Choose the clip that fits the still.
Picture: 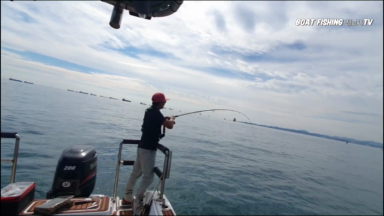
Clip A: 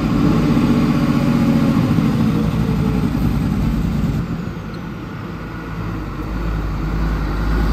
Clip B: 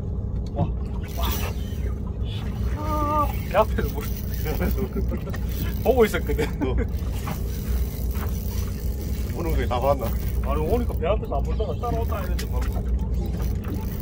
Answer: B